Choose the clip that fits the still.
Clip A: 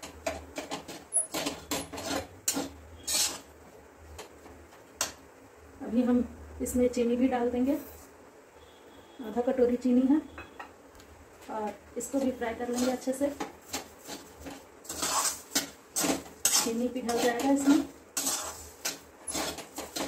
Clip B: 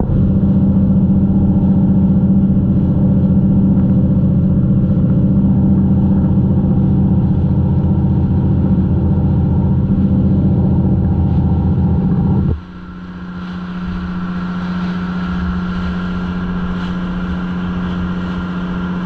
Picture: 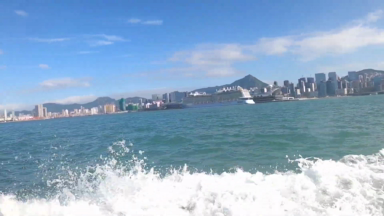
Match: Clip B